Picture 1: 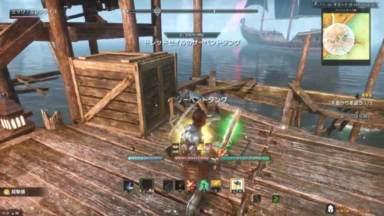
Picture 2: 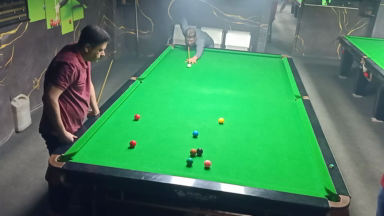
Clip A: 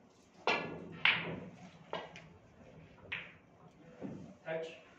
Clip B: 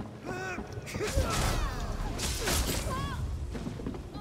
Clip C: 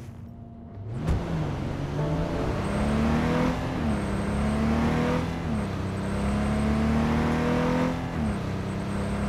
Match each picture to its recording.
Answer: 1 B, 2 A